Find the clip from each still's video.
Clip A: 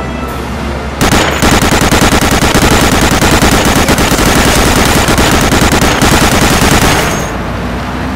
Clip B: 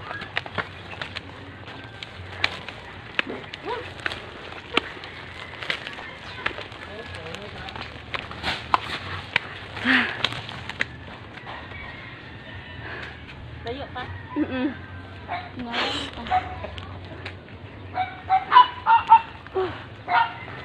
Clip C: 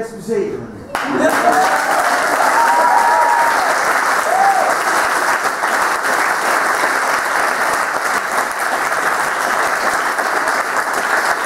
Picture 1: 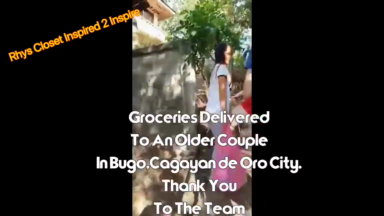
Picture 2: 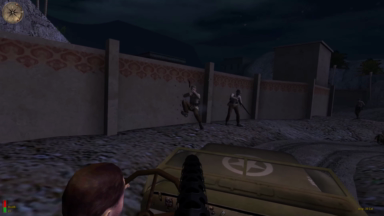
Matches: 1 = B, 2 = A